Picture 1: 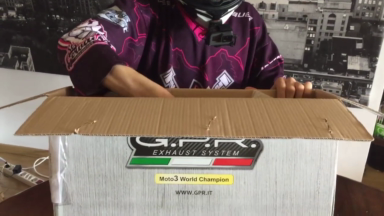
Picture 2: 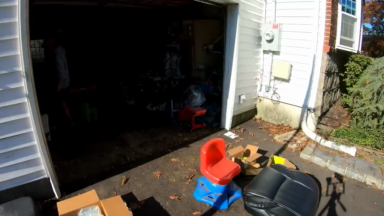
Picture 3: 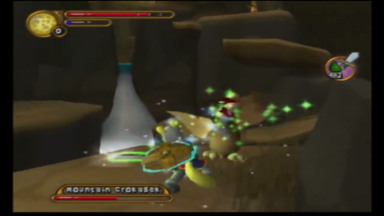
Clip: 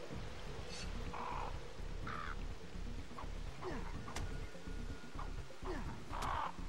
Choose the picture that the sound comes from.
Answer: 3